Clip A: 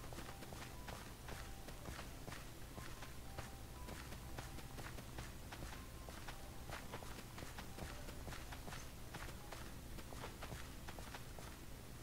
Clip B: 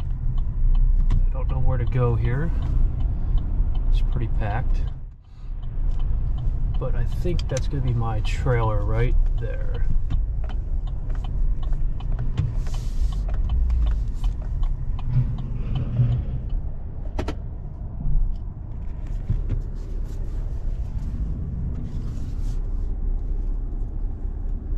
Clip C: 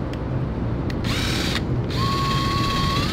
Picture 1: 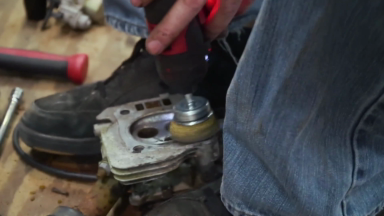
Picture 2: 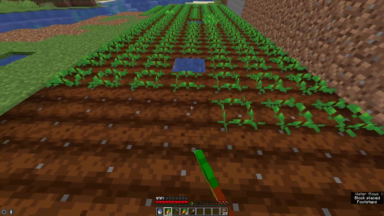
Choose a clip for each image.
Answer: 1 C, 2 A